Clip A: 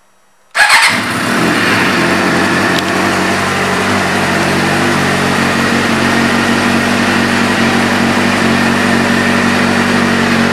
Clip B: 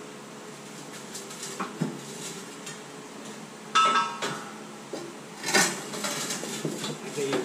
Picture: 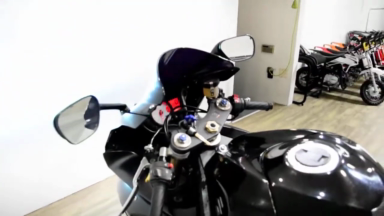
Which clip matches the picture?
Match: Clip A